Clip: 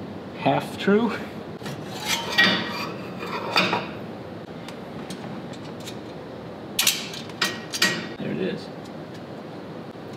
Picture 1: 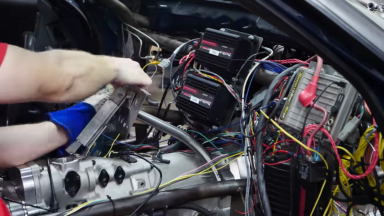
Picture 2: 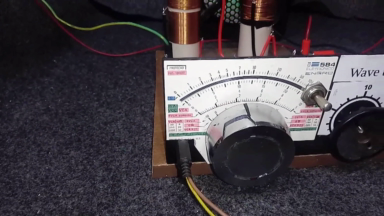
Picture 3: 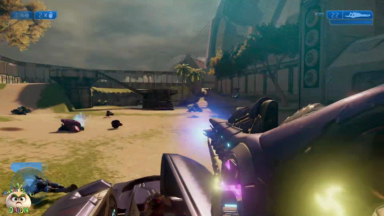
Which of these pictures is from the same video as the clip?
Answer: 1